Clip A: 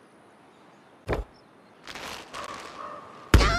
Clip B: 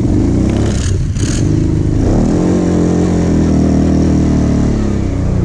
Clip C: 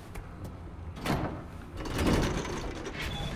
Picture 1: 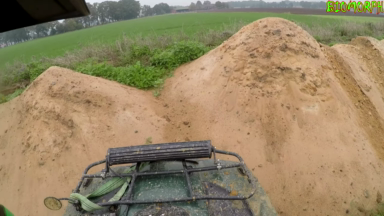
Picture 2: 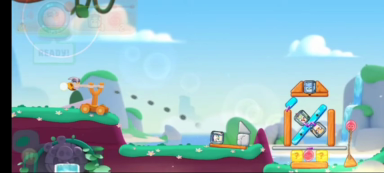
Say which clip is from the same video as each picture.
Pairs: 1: B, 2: A